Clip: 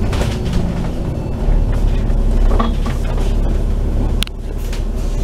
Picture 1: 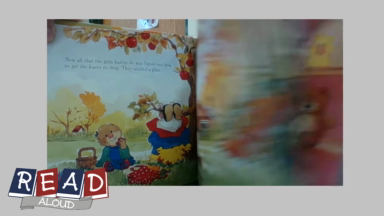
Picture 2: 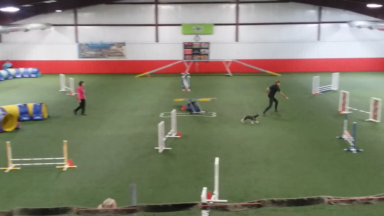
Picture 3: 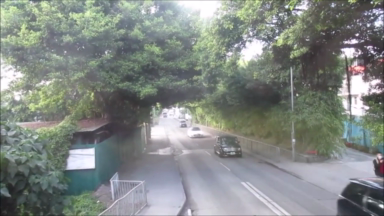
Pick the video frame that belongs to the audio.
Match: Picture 3